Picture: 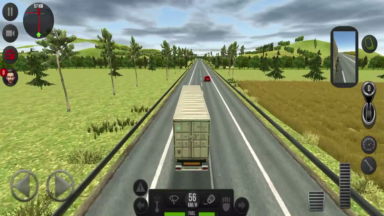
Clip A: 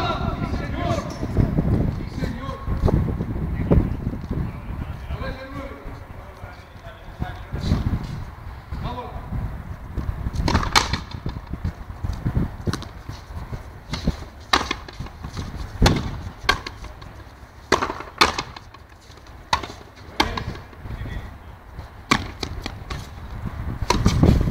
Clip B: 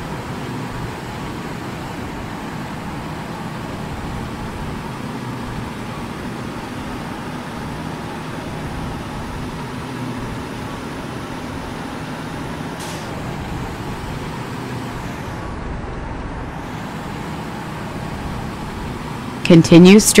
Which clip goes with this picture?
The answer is B